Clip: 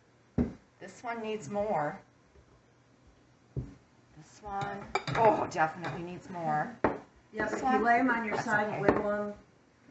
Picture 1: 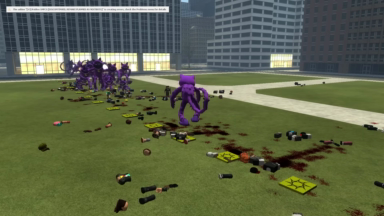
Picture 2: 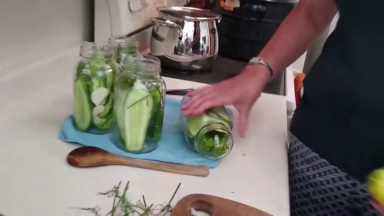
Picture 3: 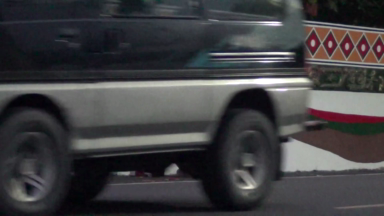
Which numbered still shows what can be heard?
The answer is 2